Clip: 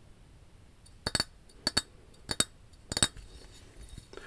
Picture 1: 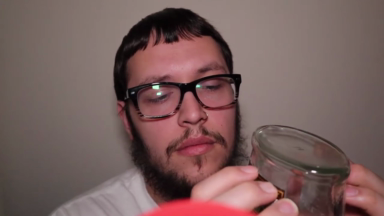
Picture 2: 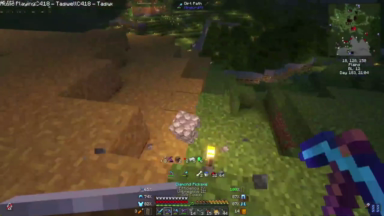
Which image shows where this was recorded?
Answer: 1